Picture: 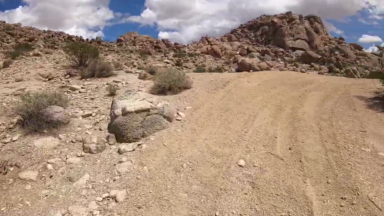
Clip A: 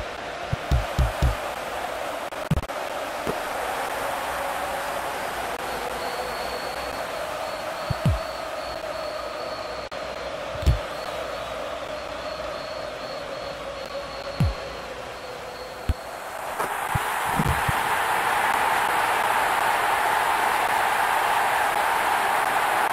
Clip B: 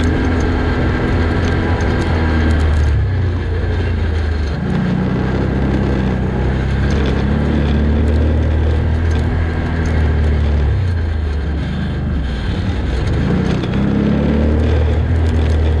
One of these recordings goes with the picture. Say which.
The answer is B